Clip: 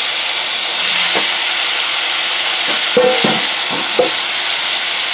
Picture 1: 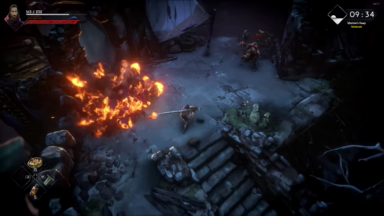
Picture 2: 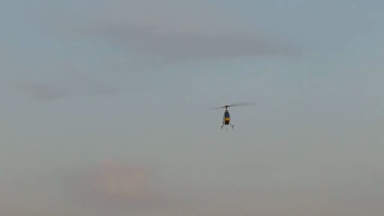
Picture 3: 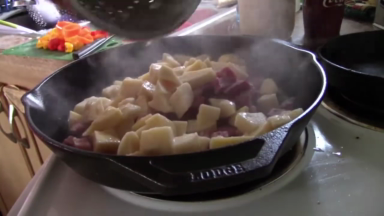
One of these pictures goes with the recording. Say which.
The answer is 3